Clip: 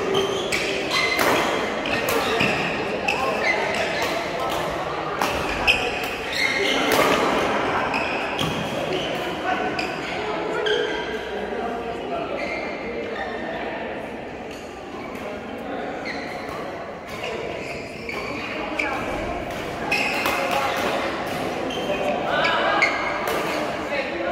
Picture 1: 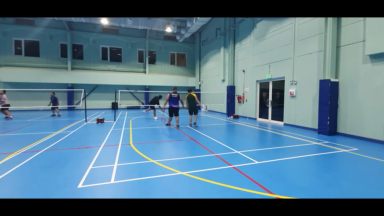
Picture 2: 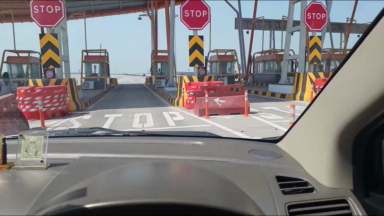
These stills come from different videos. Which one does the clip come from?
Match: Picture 1